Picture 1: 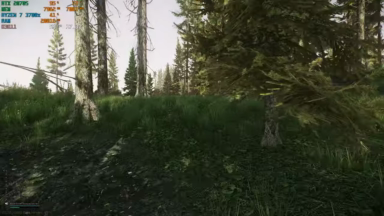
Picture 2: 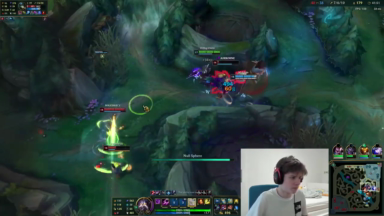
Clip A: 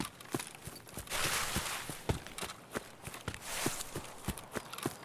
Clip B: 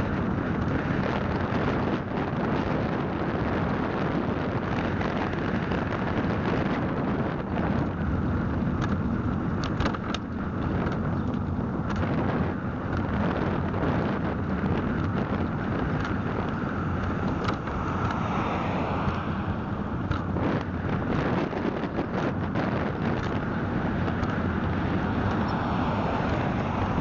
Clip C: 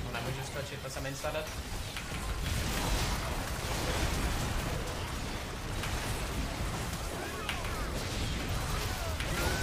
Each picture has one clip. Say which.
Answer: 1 A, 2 C